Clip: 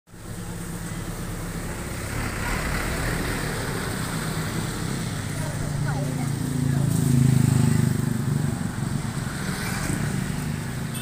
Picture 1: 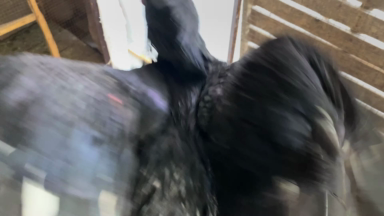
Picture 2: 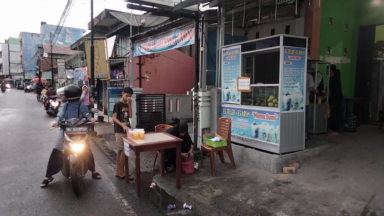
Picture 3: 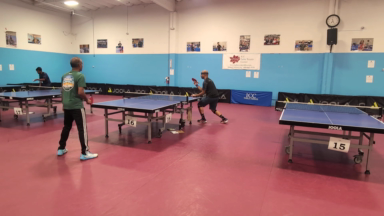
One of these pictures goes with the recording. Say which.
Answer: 2